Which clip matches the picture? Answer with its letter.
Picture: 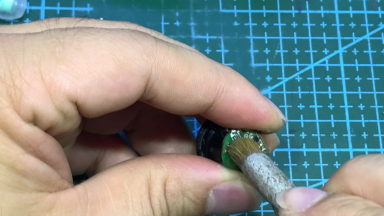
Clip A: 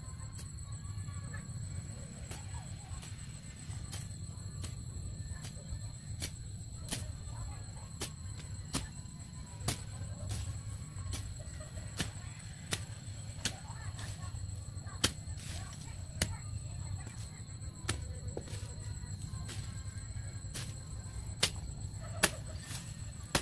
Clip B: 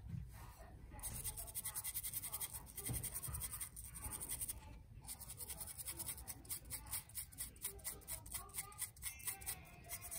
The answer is B